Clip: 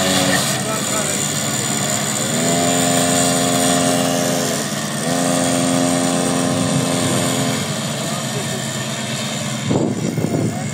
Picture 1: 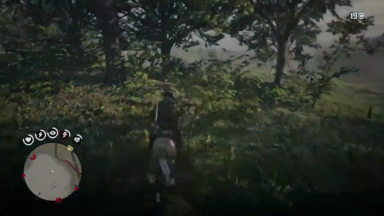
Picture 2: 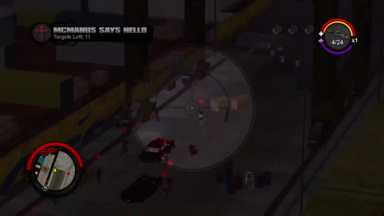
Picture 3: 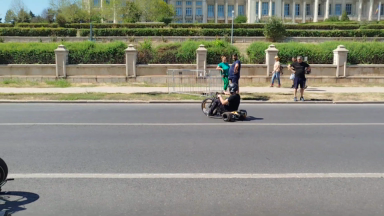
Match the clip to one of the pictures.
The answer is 3